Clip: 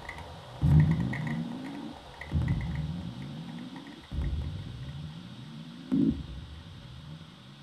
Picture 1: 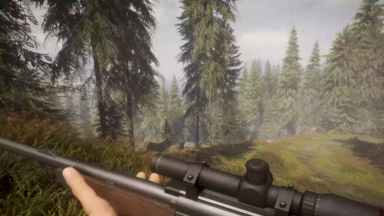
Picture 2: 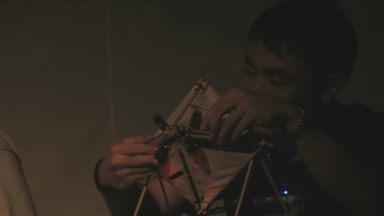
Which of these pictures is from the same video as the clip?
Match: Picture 2